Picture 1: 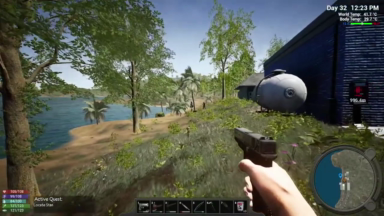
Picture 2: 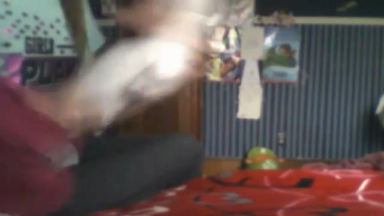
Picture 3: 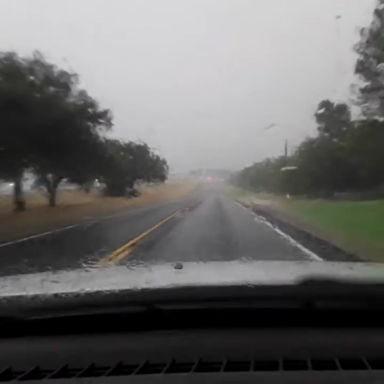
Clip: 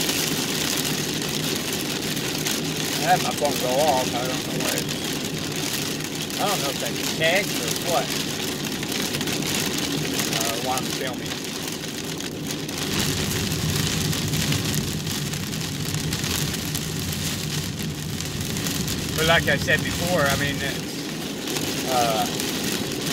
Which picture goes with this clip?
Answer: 3